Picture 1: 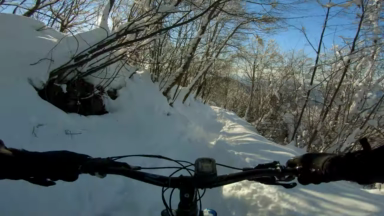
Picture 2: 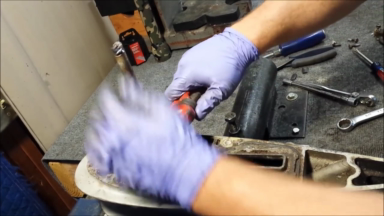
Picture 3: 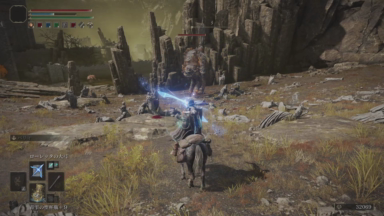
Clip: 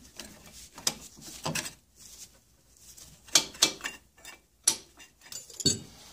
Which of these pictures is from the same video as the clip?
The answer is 2